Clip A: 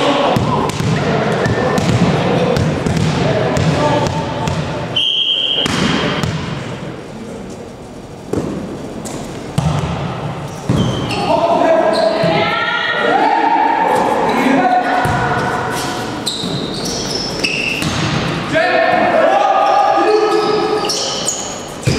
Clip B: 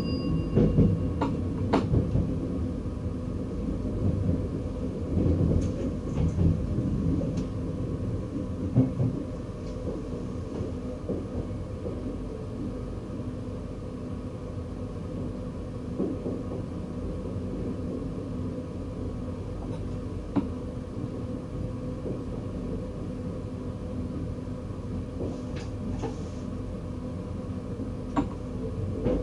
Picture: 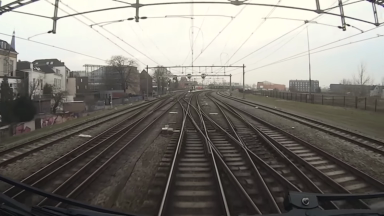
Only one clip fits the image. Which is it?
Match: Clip B